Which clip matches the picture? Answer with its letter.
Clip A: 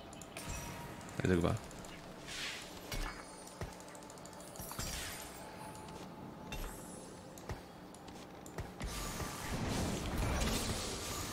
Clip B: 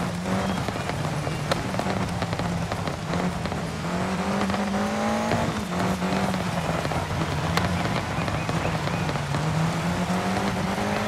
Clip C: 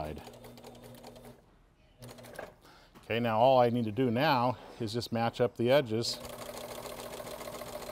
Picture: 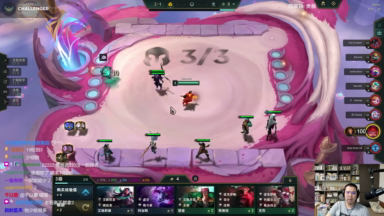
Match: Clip A